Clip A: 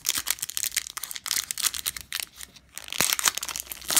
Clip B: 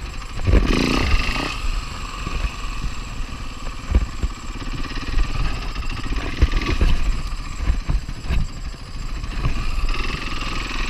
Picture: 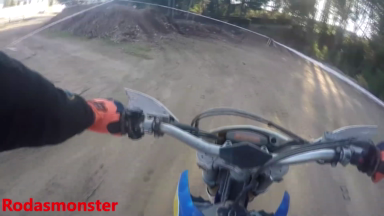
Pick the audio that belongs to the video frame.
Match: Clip B